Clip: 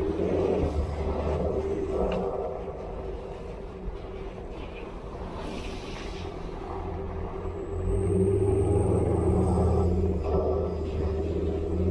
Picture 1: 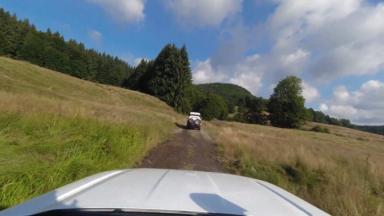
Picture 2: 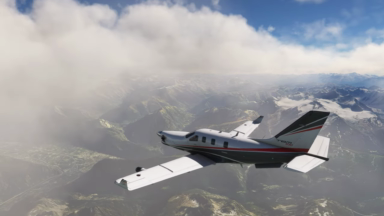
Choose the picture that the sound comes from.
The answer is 1